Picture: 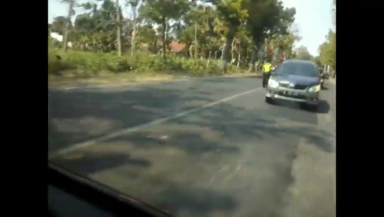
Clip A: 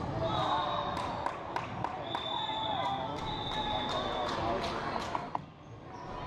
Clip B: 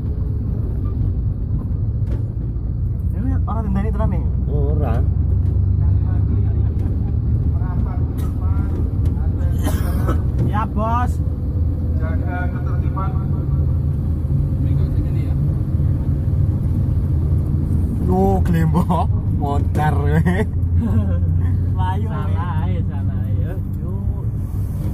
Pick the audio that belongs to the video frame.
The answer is B